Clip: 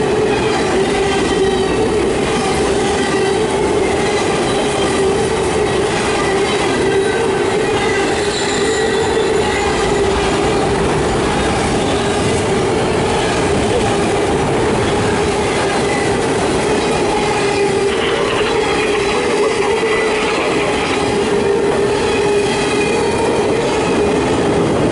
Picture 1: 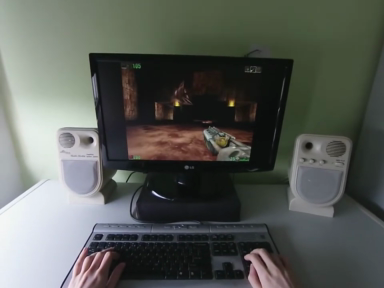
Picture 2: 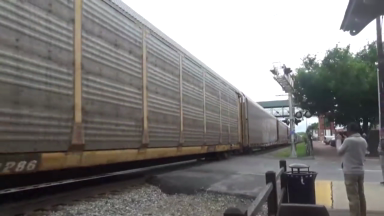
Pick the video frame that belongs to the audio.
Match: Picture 2